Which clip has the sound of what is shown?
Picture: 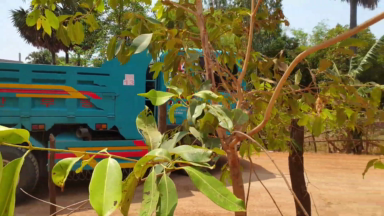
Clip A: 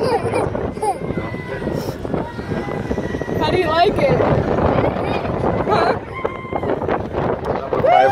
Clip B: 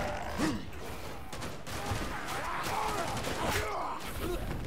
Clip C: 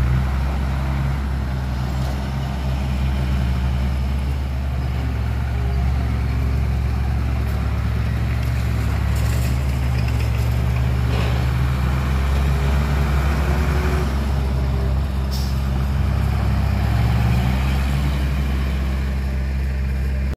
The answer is C